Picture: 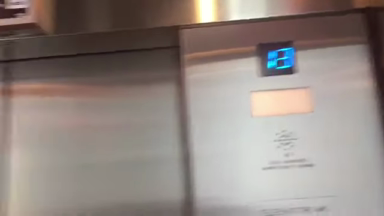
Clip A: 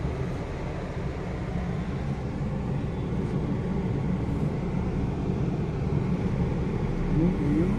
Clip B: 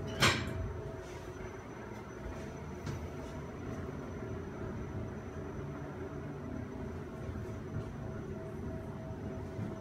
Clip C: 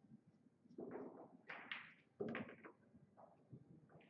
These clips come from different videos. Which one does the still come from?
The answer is B